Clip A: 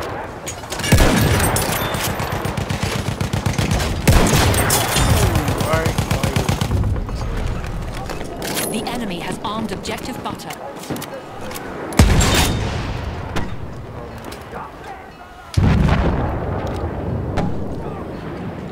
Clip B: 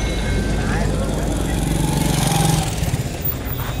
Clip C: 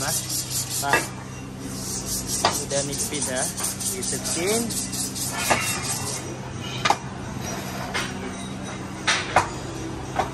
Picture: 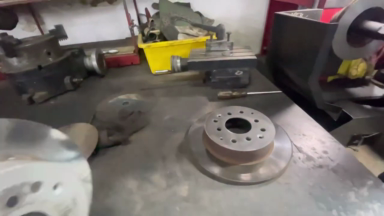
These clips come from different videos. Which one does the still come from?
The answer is C